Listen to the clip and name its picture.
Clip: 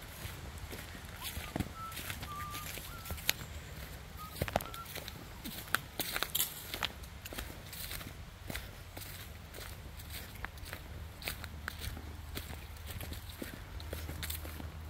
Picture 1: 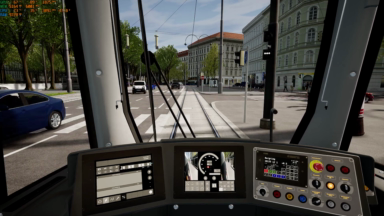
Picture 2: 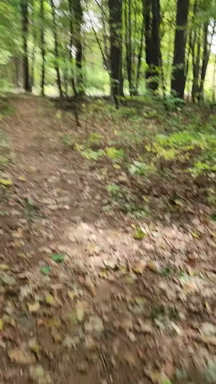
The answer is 2